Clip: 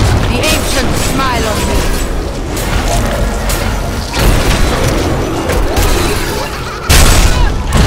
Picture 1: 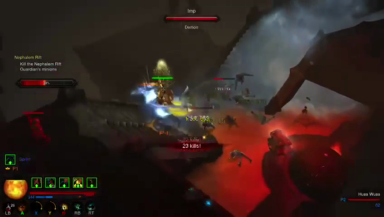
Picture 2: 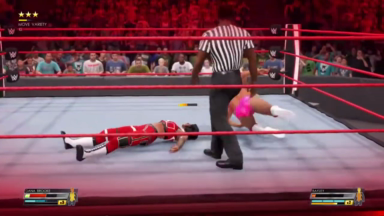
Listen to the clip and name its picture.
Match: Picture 1